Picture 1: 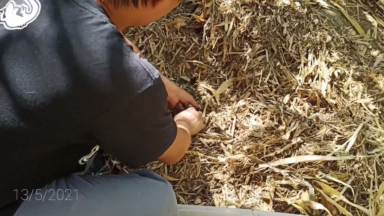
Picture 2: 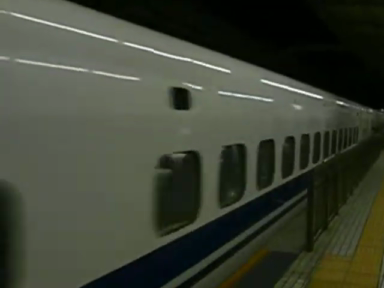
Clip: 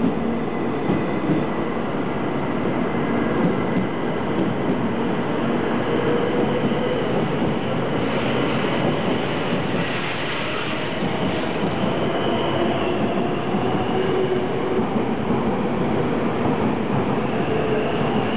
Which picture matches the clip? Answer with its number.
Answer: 2